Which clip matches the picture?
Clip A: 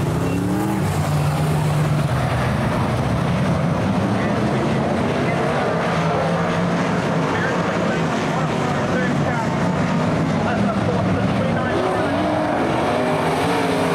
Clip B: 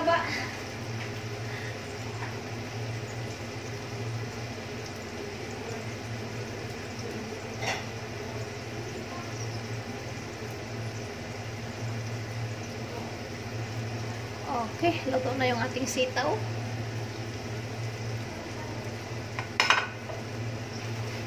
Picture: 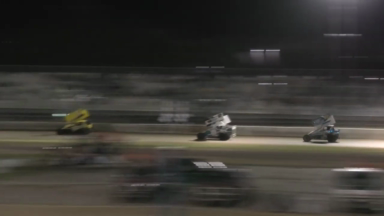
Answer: A